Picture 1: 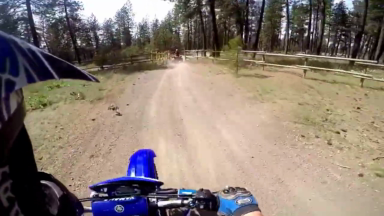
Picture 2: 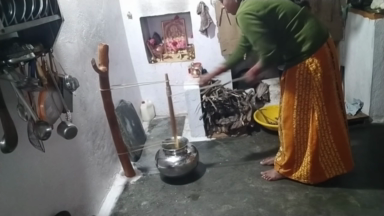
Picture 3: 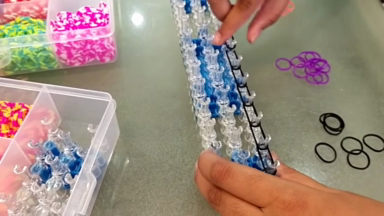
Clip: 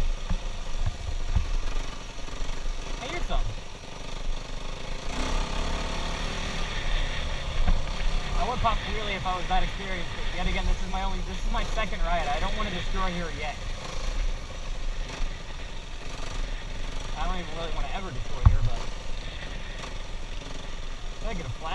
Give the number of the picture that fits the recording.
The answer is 1